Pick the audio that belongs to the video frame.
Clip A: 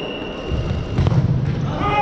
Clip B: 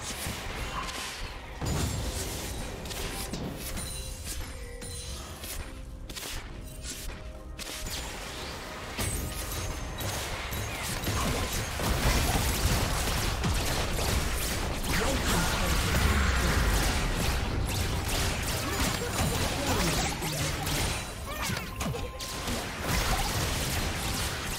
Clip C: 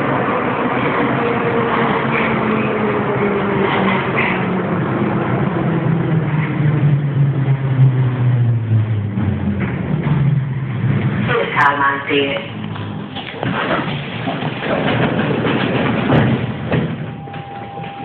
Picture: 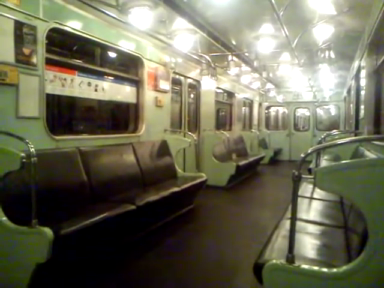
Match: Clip C